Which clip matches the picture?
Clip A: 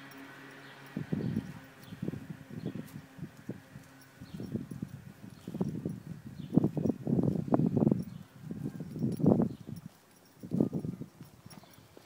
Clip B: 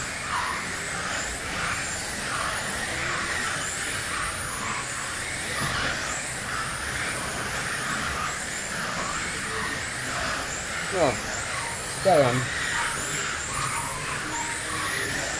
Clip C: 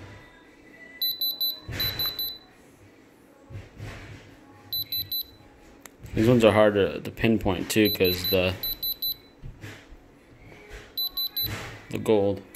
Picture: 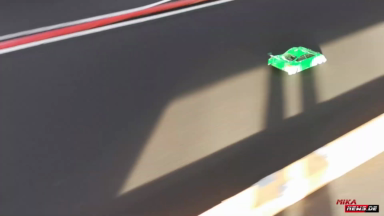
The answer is B